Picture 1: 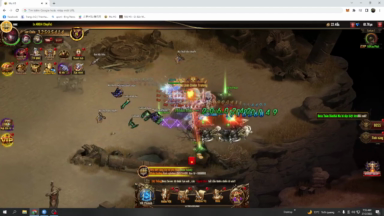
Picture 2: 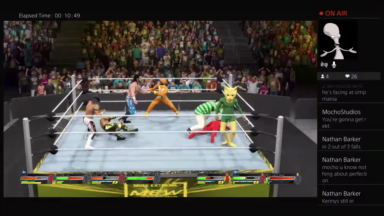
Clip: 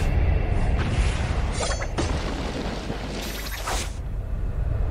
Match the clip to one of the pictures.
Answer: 1